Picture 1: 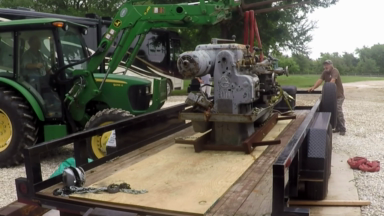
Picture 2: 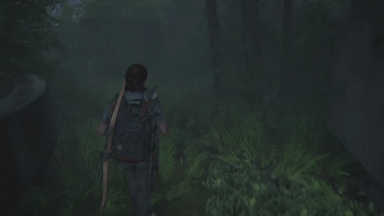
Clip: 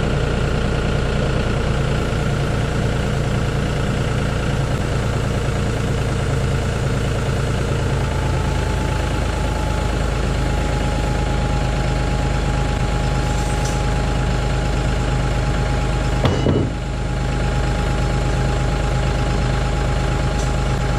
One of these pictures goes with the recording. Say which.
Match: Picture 1